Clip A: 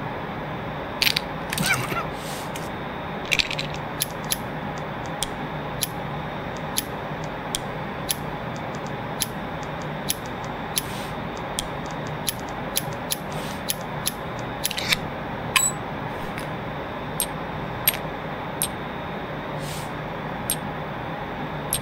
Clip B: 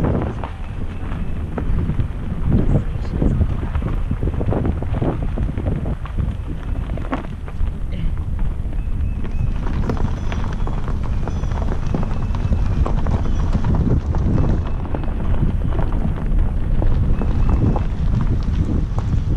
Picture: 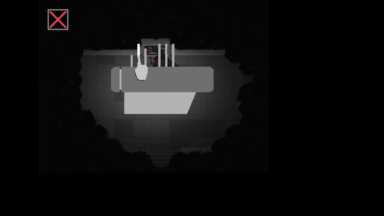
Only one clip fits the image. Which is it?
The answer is A